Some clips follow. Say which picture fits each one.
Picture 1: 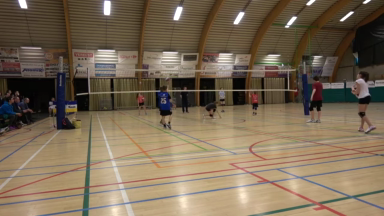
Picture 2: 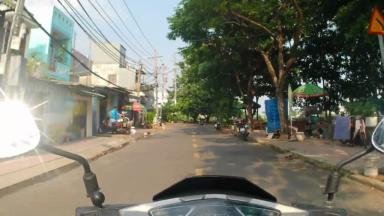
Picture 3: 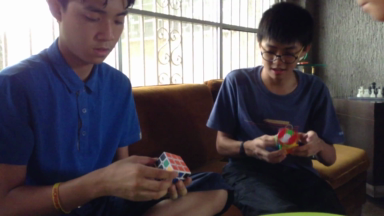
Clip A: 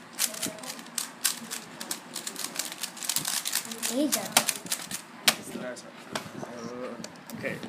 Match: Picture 3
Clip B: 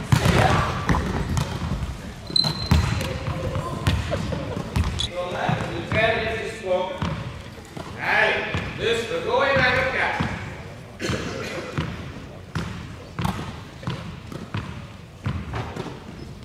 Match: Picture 1